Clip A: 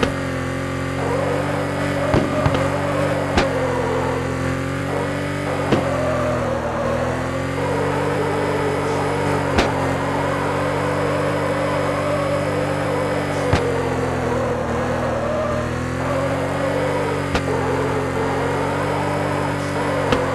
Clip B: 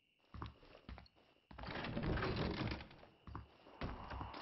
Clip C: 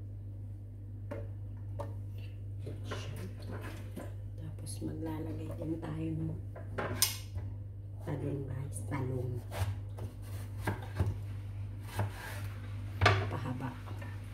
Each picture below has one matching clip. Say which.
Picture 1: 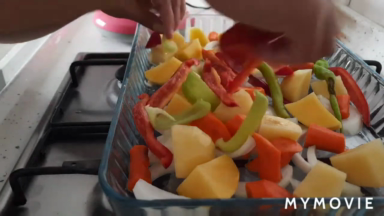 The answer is C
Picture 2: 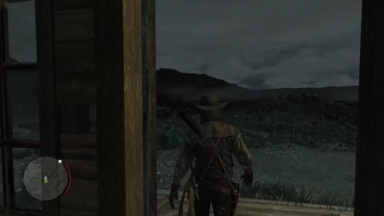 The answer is B